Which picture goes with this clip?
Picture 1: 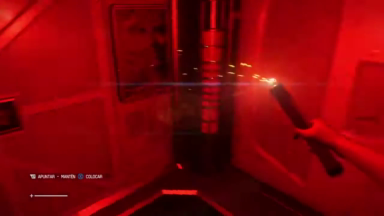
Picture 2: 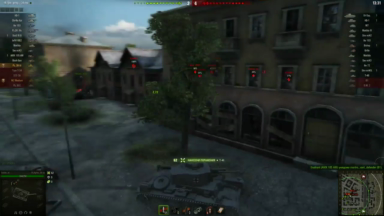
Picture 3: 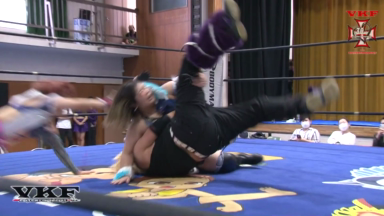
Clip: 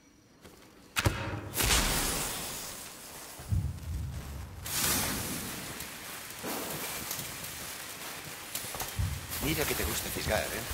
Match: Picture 1